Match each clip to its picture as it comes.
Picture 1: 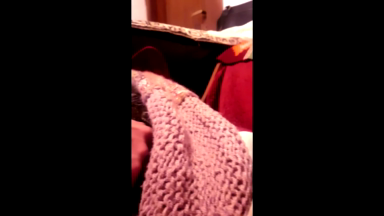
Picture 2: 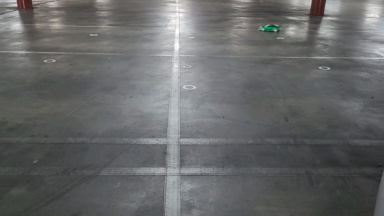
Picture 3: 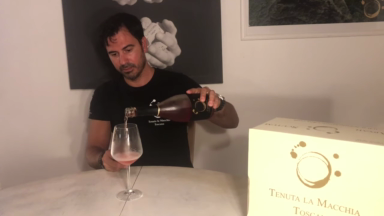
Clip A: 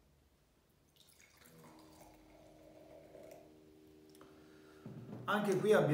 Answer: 3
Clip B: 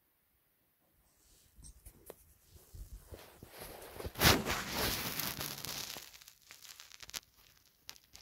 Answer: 1